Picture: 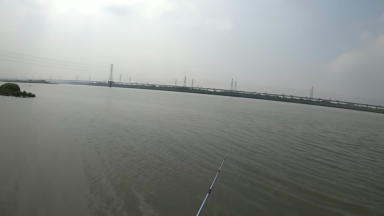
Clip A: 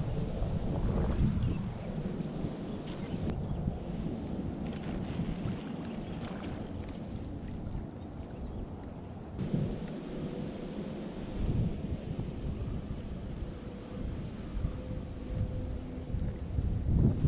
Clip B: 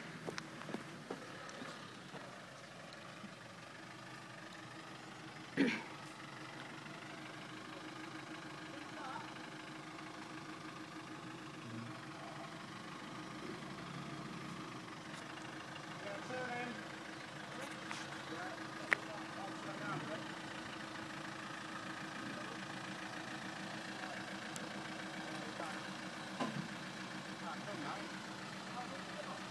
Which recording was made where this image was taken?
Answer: A